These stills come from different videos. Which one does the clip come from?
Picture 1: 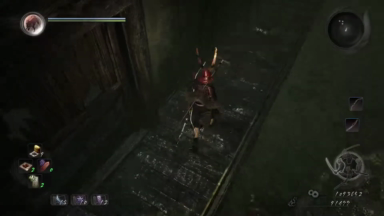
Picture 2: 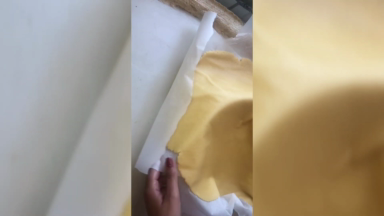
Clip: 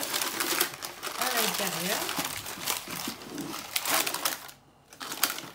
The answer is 2